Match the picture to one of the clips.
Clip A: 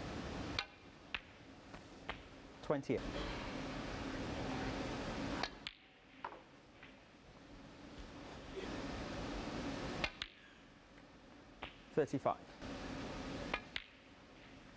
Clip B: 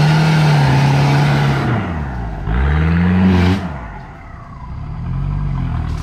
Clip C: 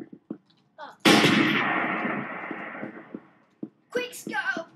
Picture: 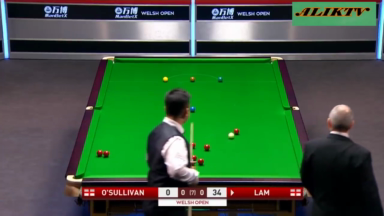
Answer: A